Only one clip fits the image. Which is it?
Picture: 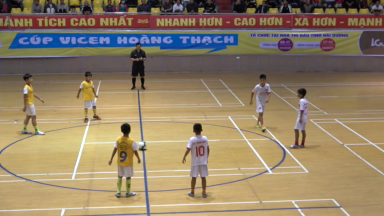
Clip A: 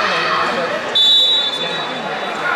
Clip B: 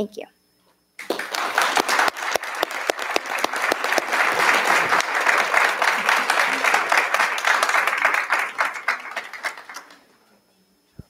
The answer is A